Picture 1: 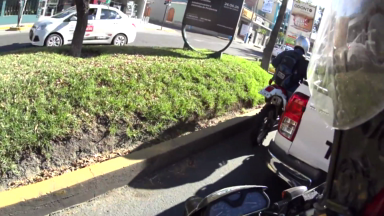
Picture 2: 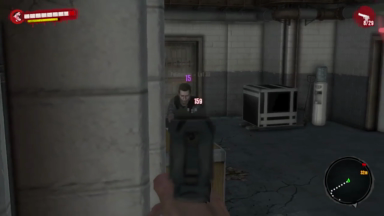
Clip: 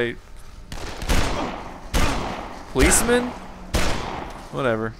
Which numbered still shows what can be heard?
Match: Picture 2